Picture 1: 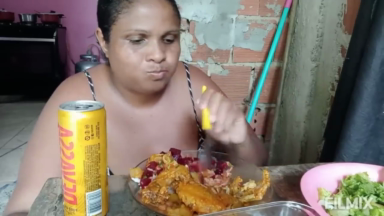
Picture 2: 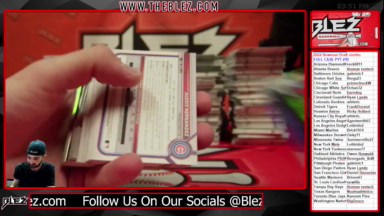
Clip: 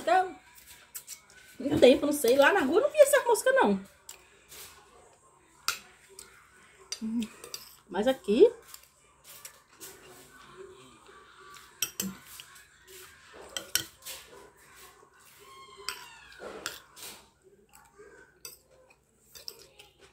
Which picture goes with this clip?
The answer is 1